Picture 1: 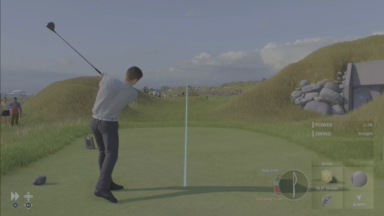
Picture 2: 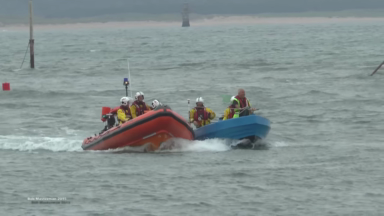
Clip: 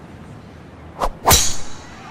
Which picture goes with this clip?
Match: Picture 1